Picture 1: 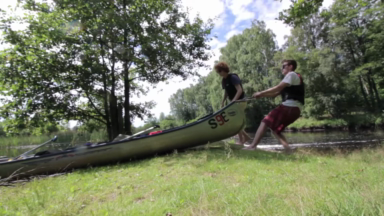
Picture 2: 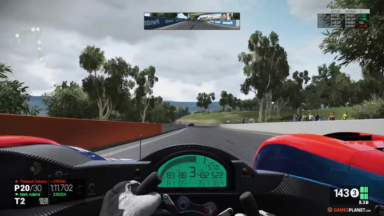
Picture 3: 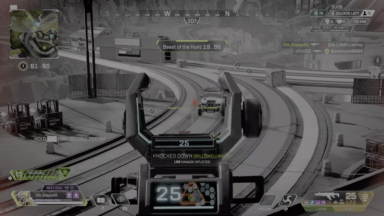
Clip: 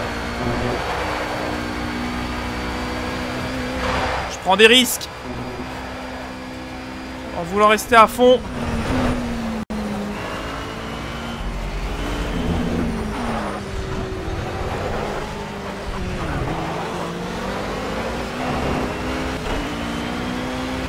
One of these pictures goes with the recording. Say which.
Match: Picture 2